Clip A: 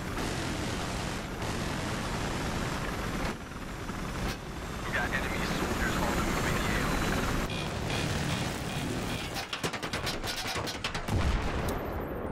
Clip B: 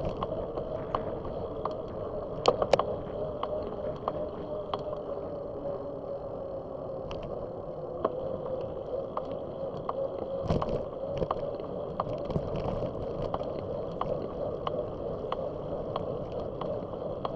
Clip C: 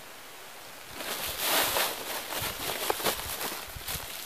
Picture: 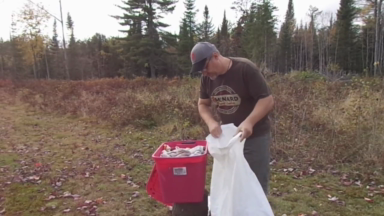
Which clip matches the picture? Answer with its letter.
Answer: C